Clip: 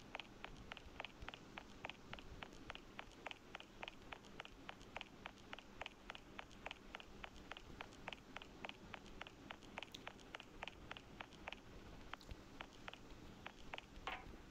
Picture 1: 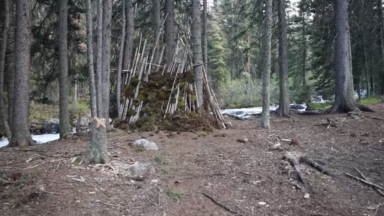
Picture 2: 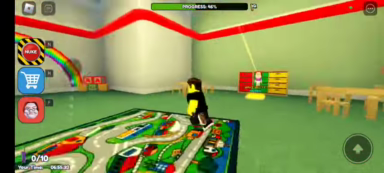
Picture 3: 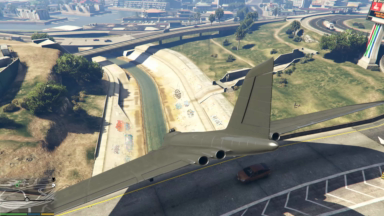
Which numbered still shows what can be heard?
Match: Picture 2